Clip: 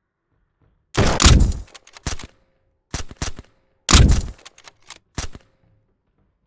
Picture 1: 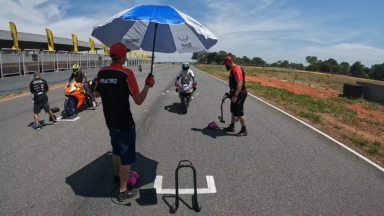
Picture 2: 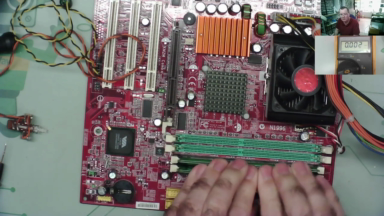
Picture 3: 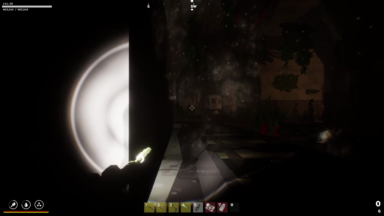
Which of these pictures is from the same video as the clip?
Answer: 3